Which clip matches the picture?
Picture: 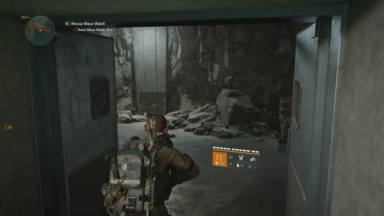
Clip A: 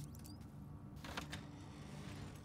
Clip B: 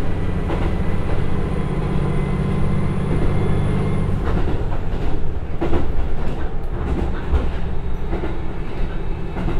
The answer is A